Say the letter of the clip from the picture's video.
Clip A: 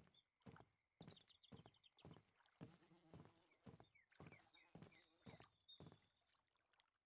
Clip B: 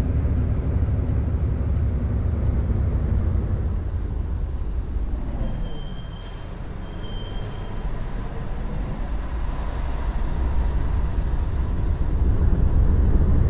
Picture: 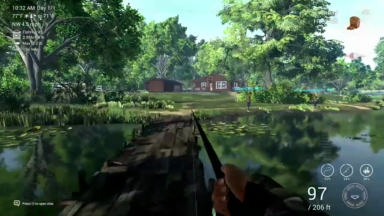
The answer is A